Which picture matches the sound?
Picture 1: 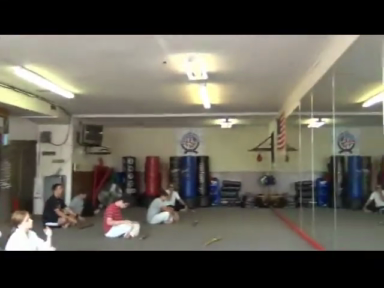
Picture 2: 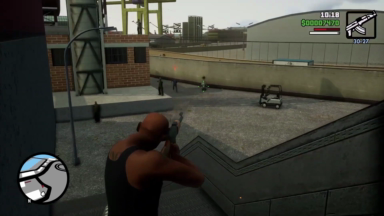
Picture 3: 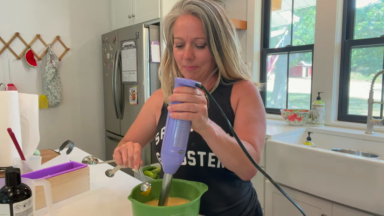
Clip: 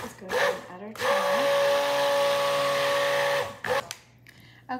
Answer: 3